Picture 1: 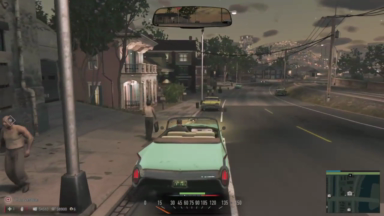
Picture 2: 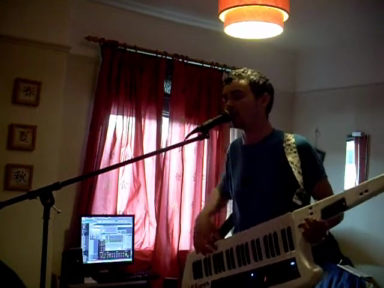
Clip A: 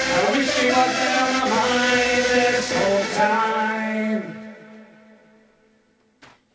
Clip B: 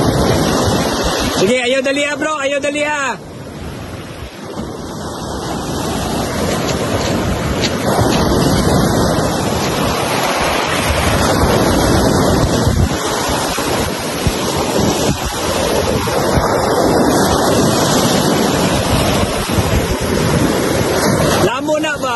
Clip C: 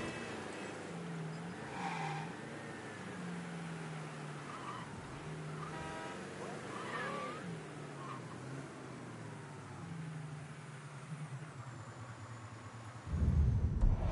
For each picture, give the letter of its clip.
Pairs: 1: C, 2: A